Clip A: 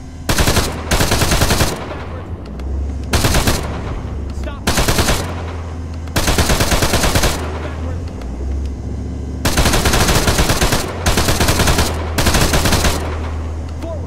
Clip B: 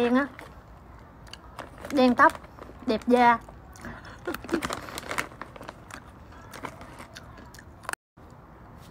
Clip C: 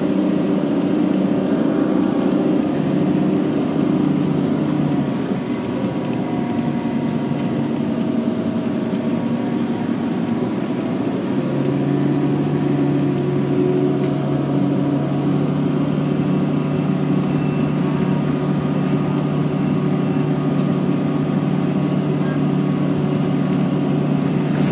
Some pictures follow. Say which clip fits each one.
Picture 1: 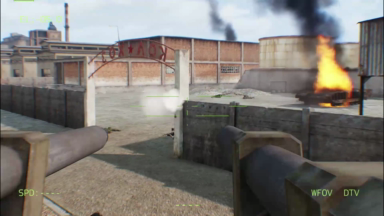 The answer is A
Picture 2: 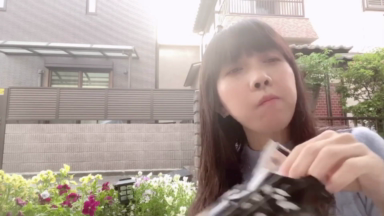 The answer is B